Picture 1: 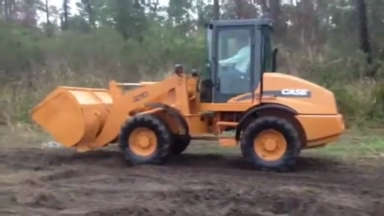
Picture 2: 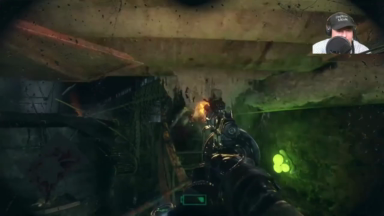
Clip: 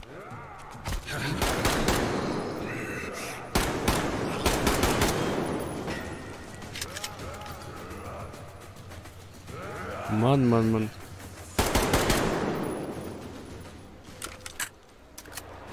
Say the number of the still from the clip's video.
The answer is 2